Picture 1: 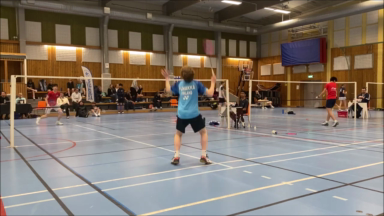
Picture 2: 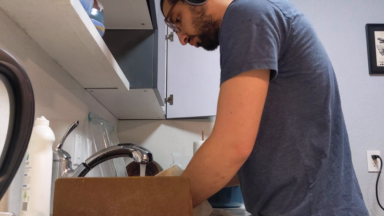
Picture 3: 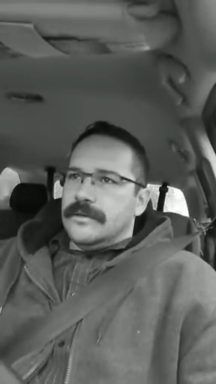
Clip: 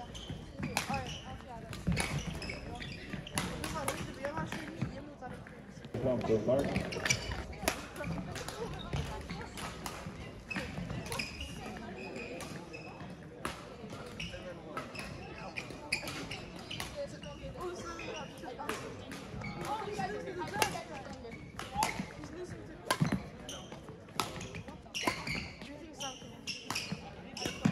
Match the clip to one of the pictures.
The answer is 1